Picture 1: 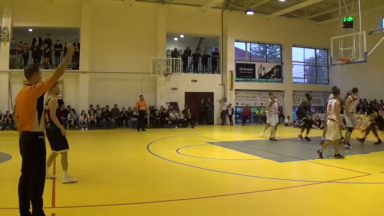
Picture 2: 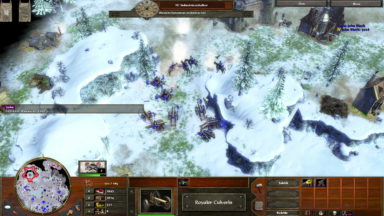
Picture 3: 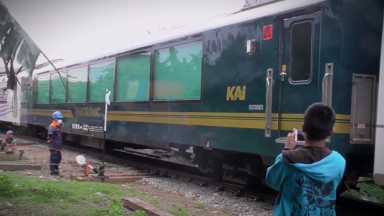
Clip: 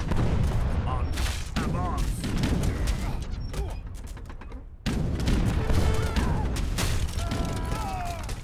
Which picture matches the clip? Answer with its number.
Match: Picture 2